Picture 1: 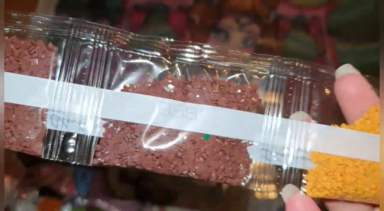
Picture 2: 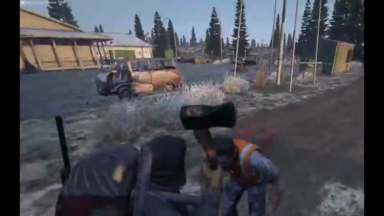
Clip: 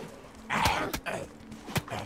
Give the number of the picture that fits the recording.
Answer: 2